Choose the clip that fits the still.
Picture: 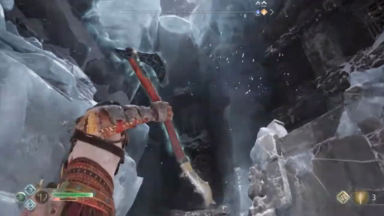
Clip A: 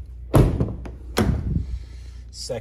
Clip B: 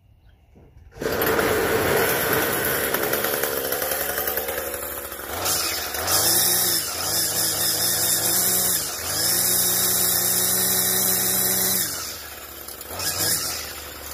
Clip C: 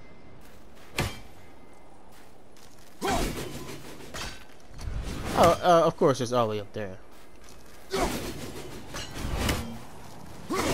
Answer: C